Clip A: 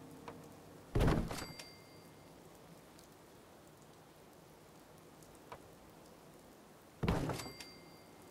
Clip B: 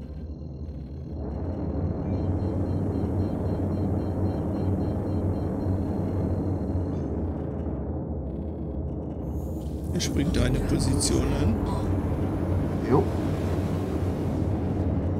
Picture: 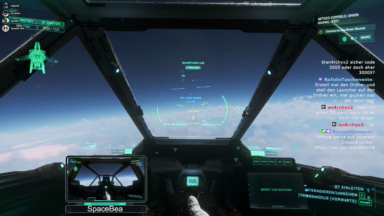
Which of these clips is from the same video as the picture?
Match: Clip B